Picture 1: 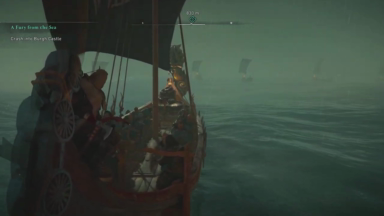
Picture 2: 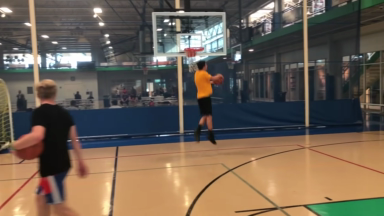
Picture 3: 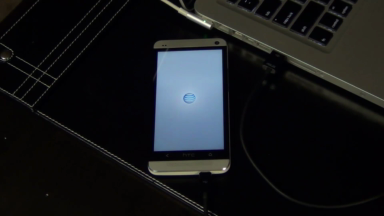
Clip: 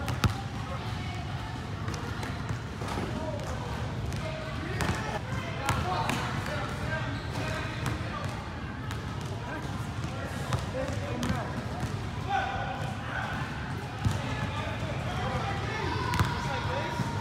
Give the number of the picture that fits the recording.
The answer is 2